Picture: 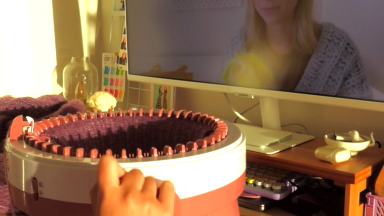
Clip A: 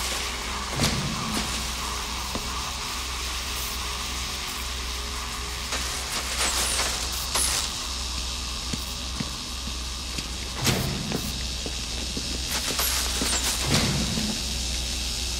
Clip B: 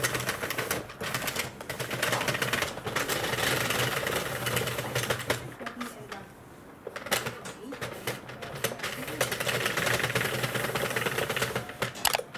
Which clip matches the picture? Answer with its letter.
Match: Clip B